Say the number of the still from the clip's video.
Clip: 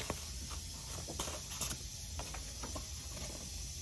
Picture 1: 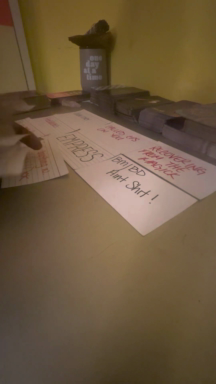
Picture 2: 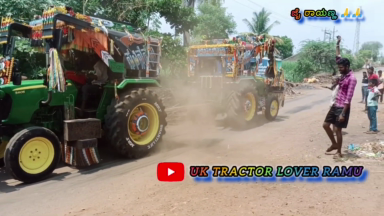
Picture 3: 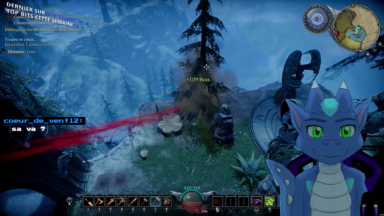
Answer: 1